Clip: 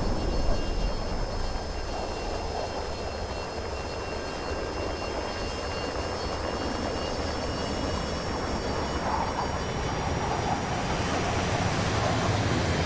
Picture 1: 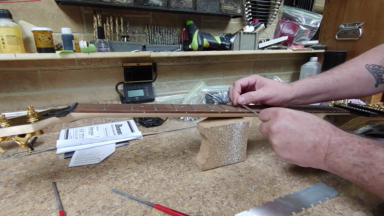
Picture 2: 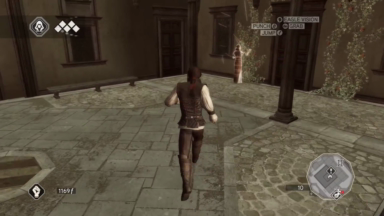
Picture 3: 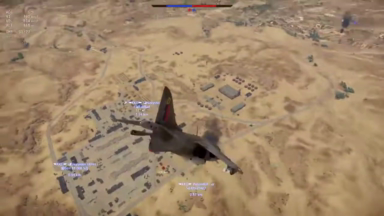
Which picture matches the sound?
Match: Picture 3